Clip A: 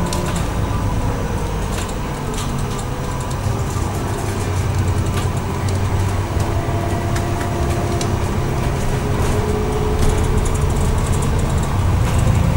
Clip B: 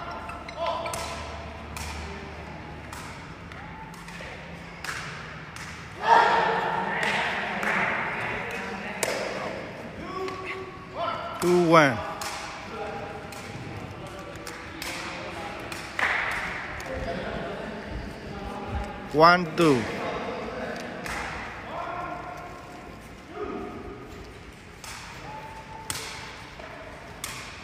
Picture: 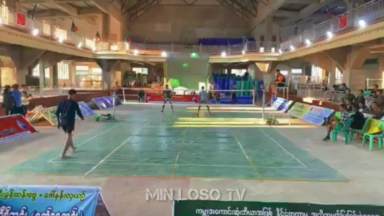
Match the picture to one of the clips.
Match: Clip B